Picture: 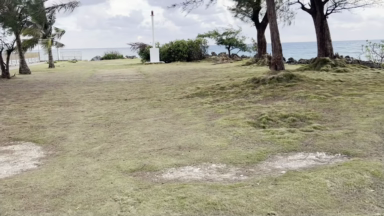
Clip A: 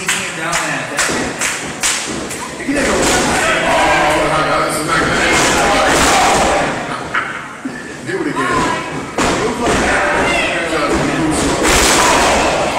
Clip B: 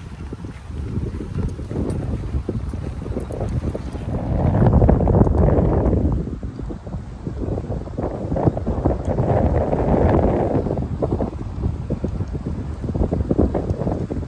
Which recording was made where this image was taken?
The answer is B